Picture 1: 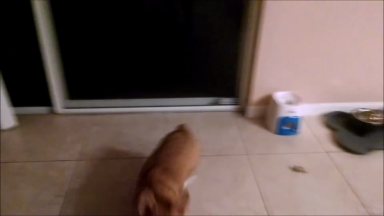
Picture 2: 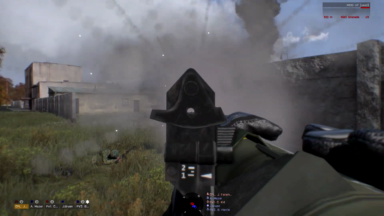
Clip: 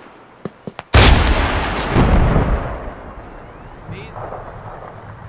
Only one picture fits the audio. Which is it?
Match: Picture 2